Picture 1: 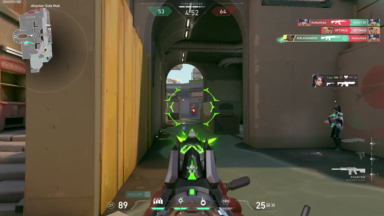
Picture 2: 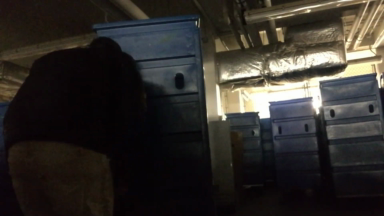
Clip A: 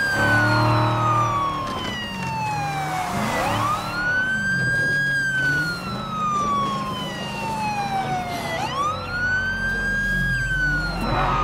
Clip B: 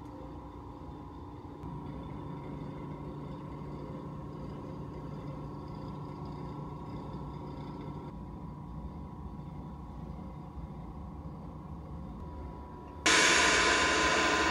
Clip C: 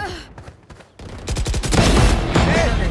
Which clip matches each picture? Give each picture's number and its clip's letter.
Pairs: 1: C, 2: B